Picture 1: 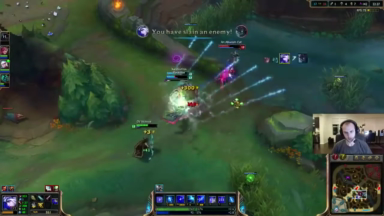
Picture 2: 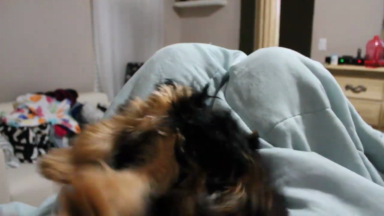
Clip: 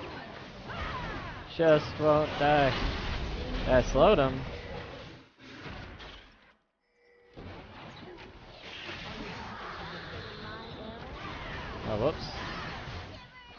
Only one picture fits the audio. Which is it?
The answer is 1